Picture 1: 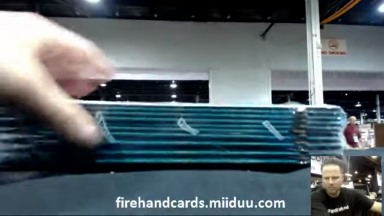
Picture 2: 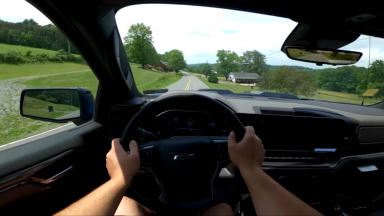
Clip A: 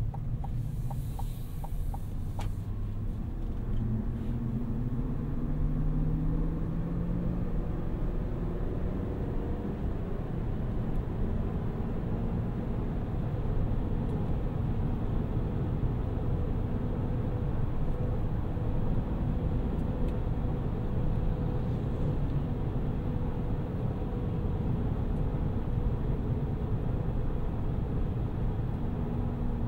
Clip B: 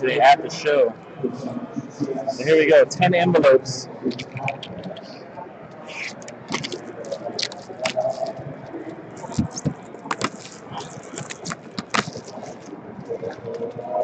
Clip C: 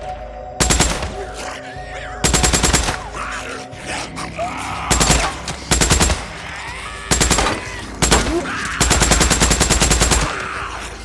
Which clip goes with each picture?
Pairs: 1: B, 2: A